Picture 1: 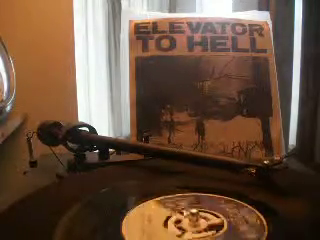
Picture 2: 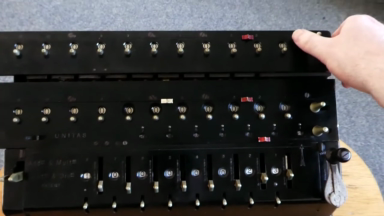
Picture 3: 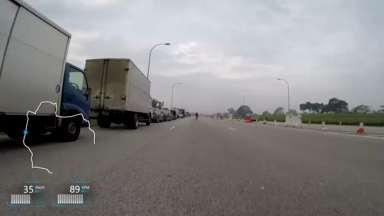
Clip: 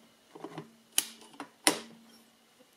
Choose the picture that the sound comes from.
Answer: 2